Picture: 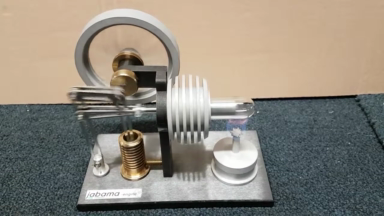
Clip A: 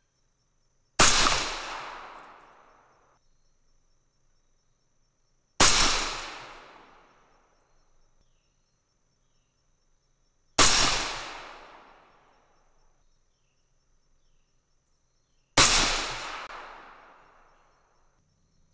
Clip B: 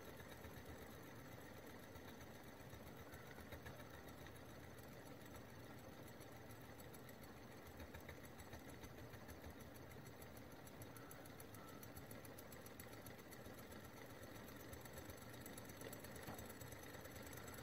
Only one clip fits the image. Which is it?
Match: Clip B